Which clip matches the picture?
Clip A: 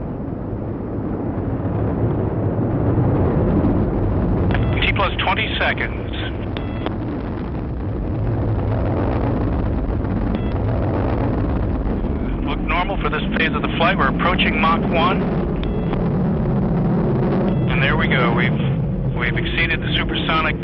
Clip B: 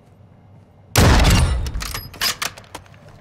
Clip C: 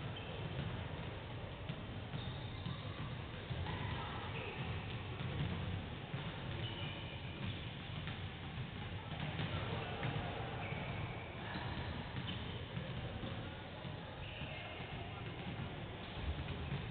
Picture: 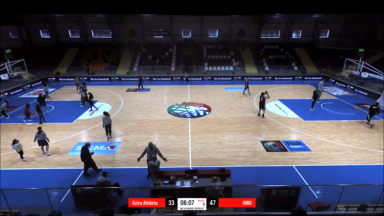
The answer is C